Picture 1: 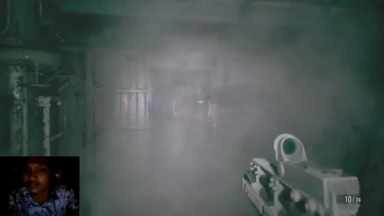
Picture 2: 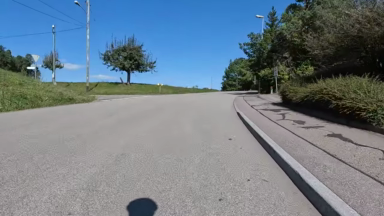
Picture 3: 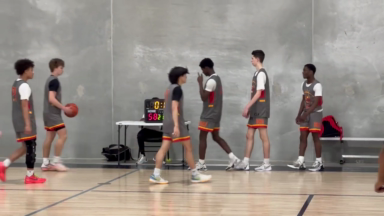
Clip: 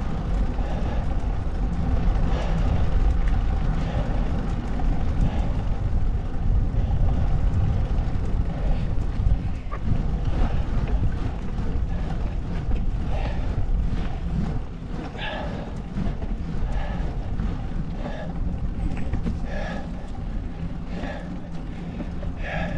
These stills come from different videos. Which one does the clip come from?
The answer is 2